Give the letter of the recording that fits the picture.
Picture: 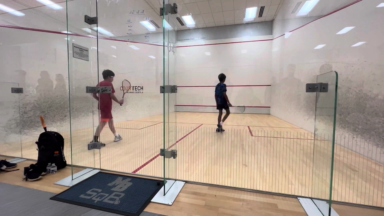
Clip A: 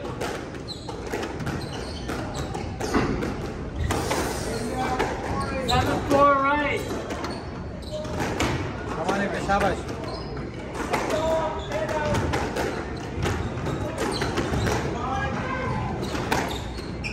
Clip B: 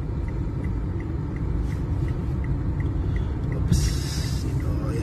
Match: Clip A